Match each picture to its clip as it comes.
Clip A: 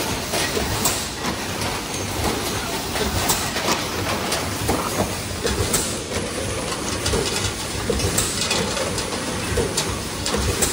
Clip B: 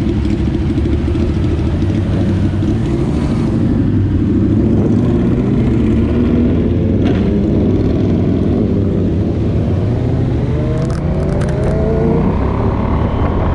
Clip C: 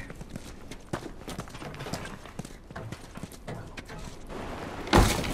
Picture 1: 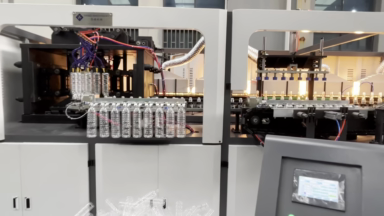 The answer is A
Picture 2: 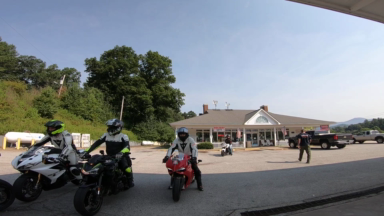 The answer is B